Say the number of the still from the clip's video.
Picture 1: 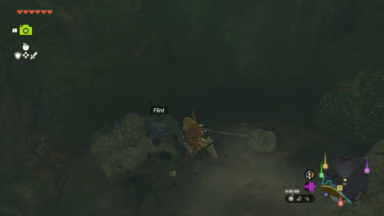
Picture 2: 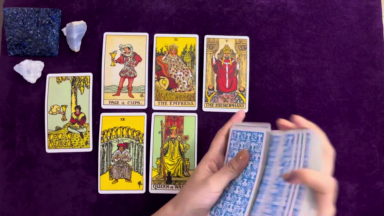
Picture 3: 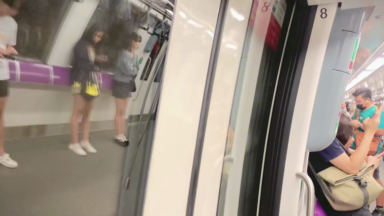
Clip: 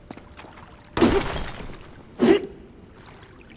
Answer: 1